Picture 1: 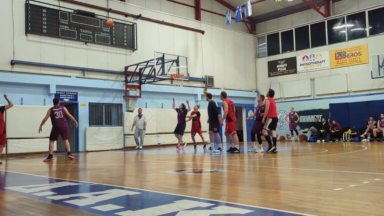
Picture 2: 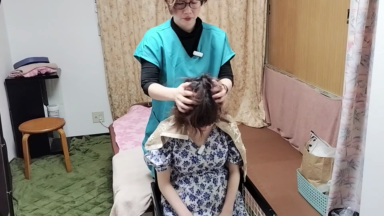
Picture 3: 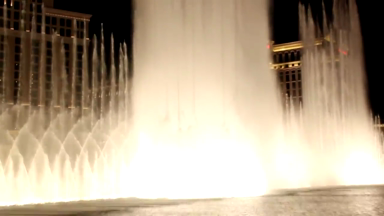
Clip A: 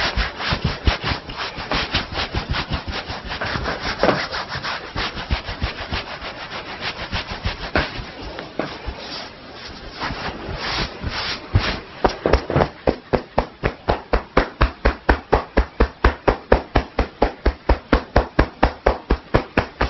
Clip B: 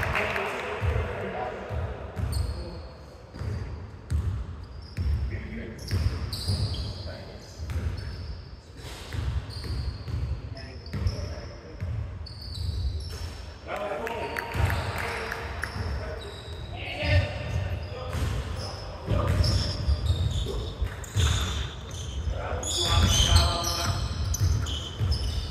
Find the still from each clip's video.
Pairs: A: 2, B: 1